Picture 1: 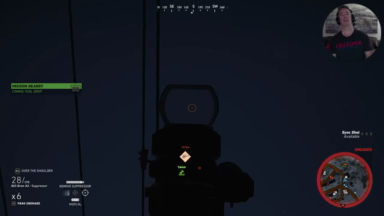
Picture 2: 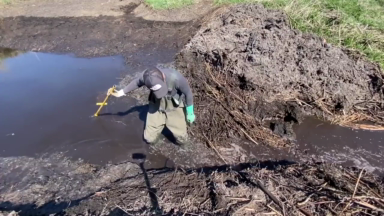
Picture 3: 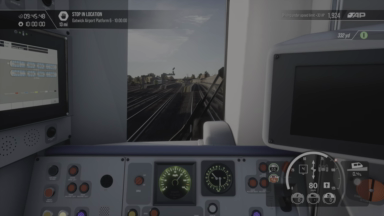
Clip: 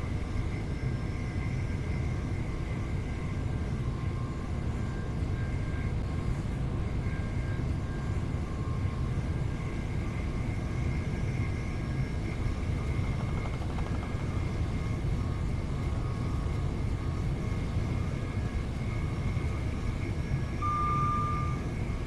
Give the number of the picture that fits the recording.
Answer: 3